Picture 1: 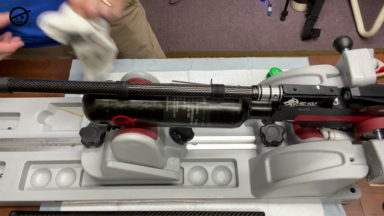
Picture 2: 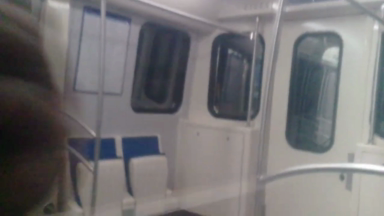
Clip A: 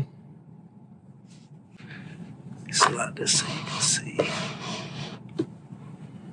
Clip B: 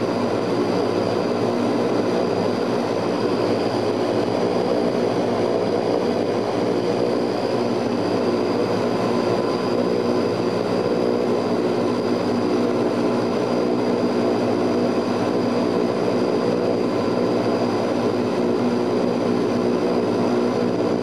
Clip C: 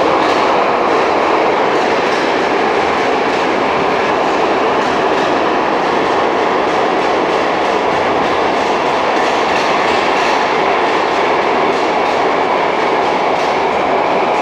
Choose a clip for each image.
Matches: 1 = A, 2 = C